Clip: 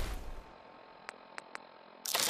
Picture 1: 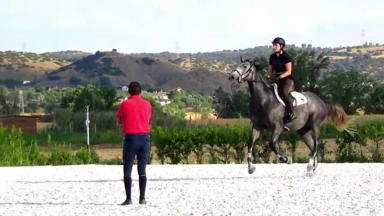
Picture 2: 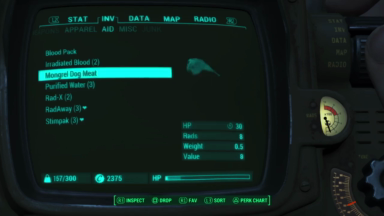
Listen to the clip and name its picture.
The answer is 2